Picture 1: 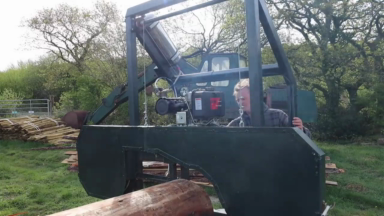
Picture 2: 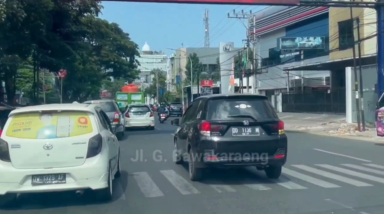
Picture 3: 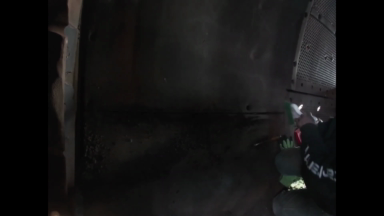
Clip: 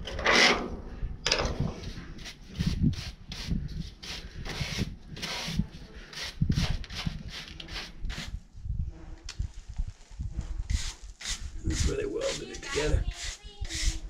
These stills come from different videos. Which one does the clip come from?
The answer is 3